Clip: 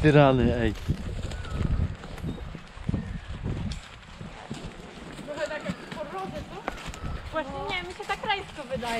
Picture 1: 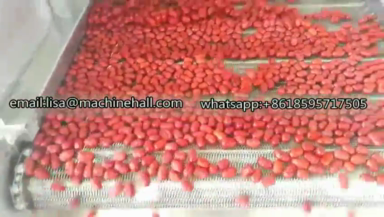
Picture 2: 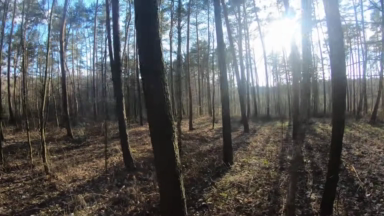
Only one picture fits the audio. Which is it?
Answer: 2